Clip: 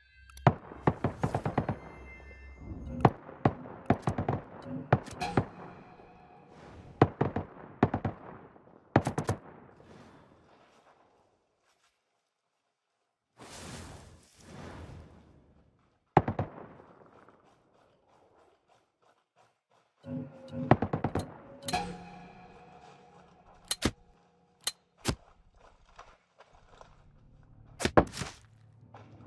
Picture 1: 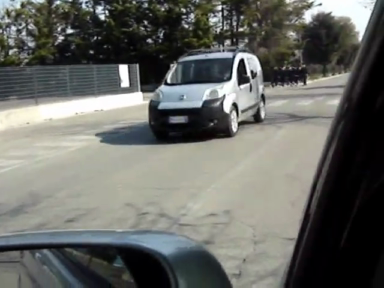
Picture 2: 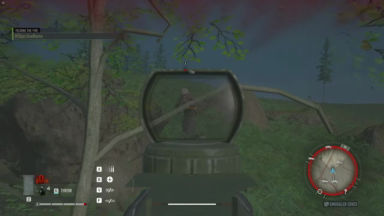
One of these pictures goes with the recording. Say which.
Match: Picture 2